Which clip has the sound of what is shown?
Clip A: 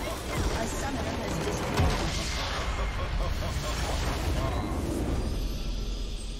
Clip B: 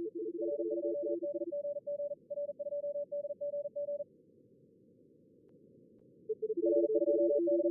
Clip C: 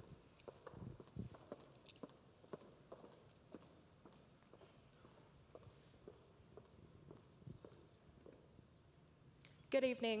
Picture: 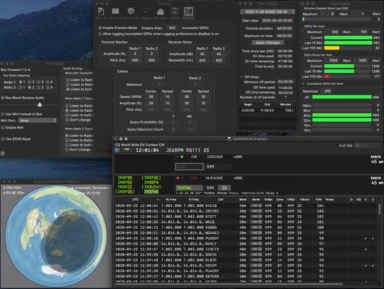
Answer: B